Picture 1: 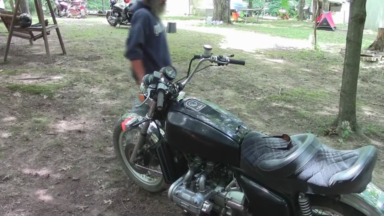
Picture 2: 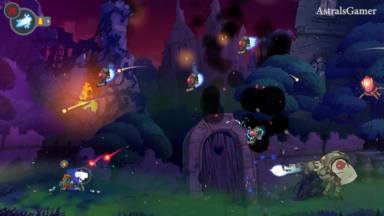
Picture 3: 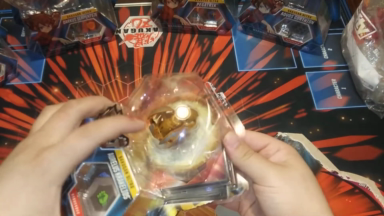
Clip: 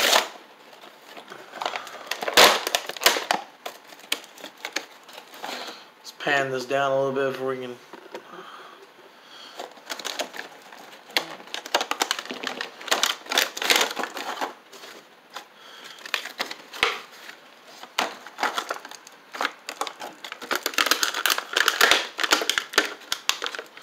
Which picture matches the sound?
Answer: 3